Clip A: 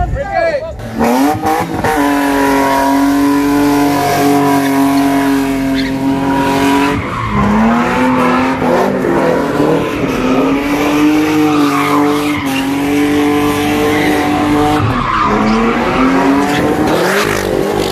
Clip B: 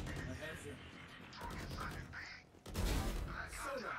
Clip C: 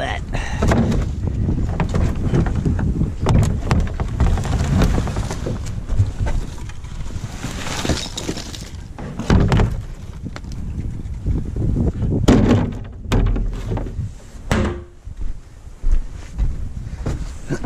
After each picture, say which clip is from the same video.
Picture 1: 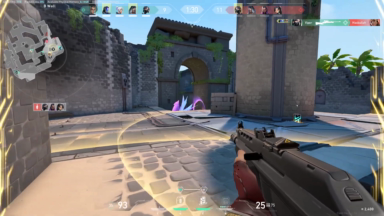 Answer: B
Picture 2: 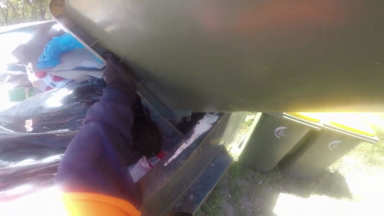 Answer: C